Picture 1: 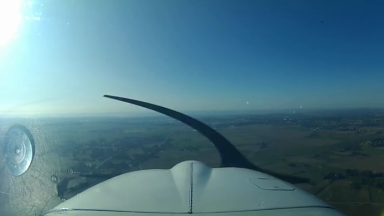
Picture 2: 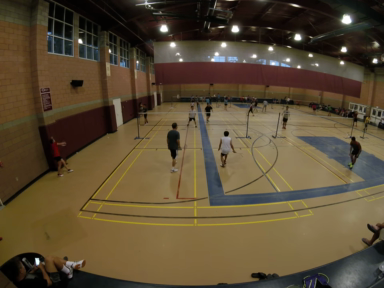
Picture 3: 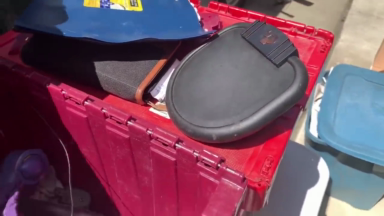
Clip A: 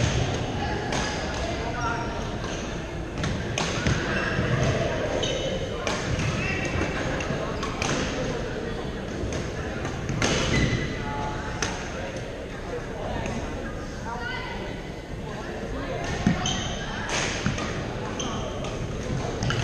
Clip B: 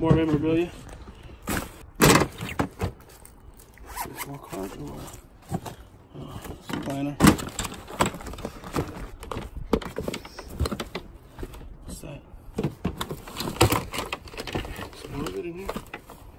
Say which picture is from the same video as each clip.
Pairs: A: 2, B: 3